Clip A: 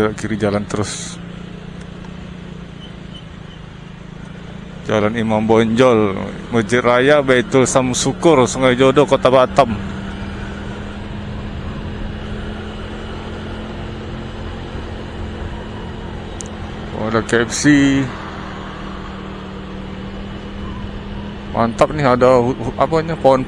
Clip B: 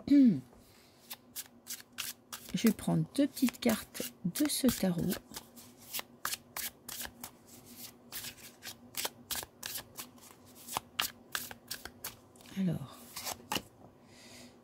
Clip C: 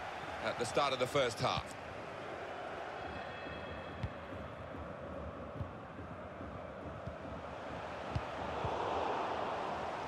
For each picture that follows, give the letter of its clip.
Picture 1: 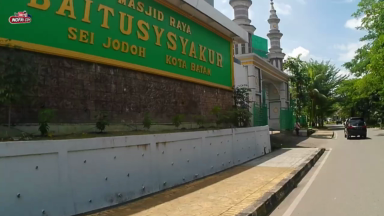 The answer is A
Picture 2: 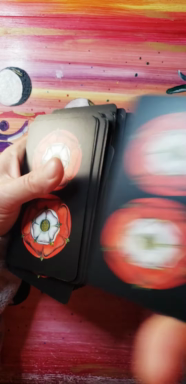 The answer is B